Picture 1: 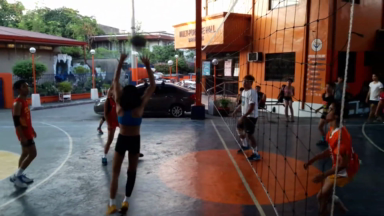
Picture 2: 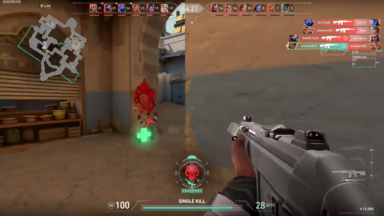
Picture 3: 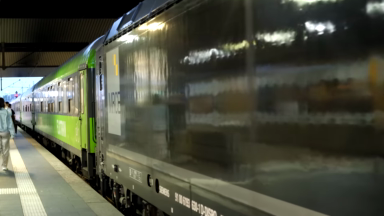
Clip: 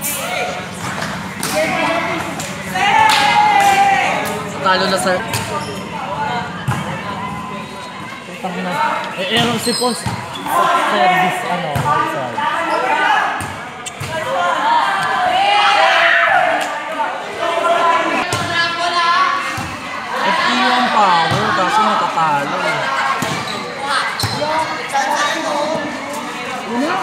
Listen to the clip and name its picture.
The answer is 1